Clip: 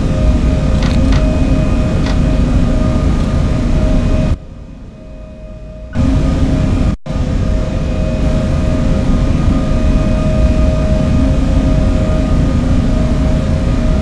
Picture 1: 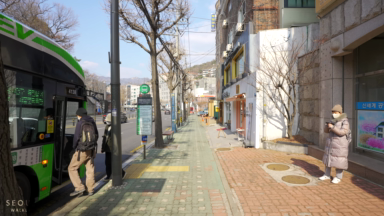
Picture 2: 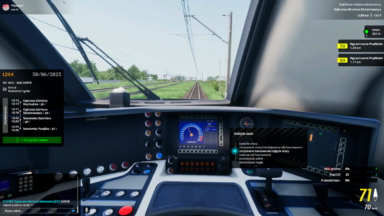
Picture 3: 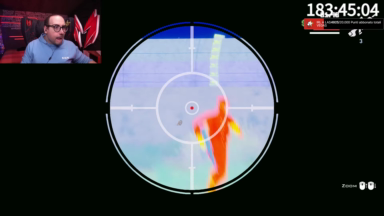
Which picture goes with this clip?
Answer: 2